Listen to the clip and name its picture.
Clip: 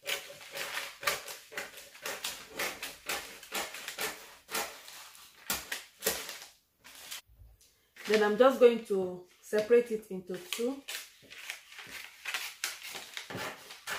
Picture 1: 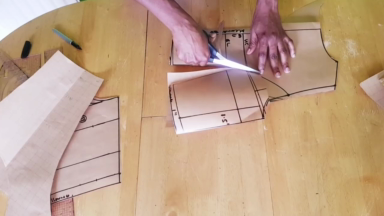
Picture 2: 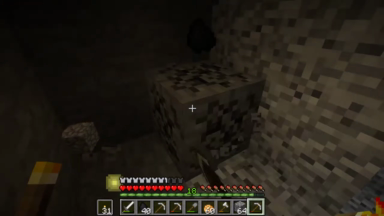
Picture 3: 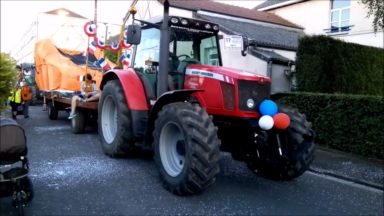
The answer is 1